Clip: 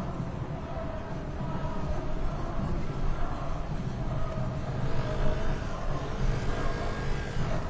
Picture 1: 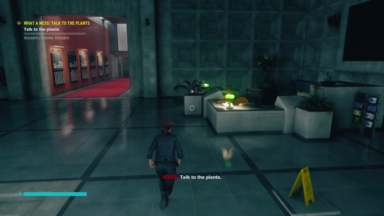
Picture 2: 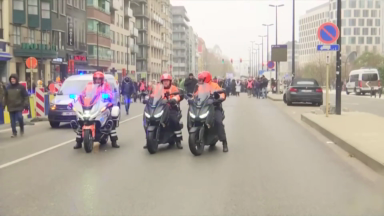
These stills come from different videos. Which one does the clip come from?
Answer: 2